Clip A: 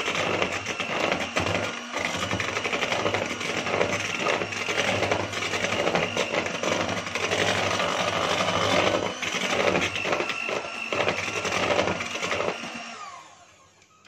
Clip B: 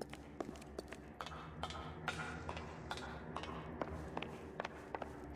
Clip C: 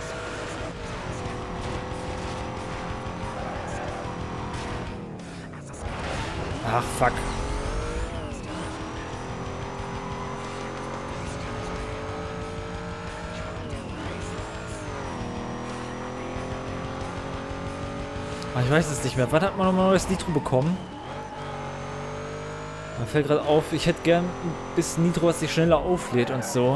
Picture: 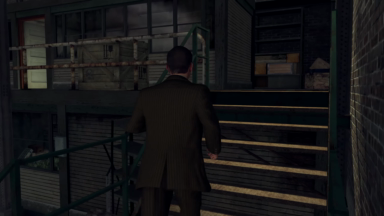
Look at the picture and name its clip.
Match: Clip B